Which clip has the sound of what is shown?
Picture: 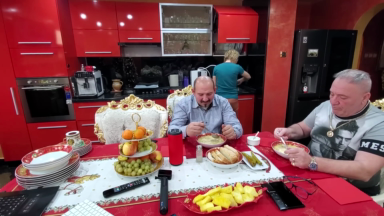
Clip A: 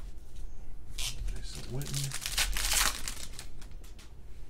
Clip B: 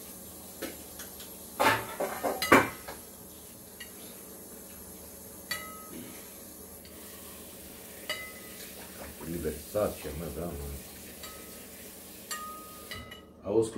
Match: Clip B